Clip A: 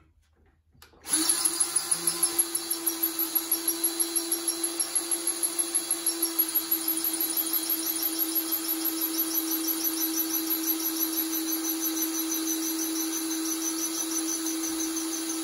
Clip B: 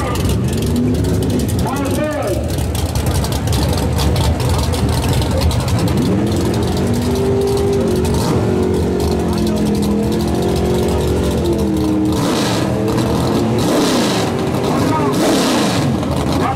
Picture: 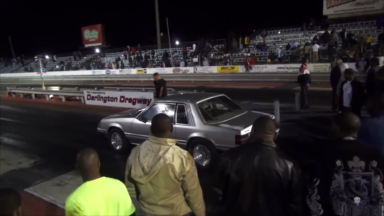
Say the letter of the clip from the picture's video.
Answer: B